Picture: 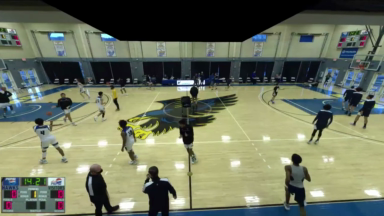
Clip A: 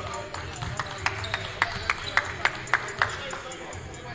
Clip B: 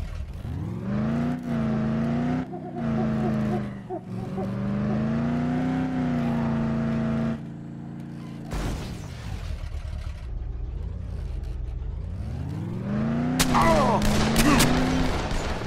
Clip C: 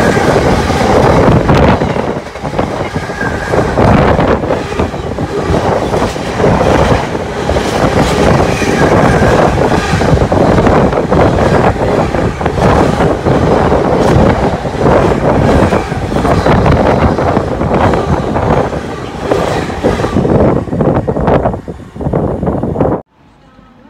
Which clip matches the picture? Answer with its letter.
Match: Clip A